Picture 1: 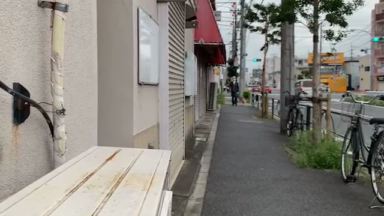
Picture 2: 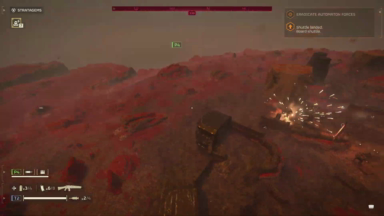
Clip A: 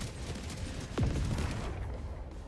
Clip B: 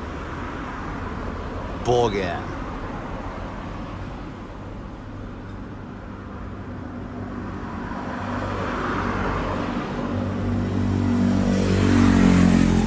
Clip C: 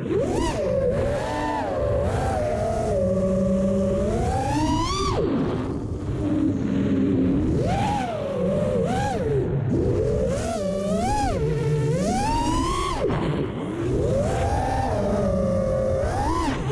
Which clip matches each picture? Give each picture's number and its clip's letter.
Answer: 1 B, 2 A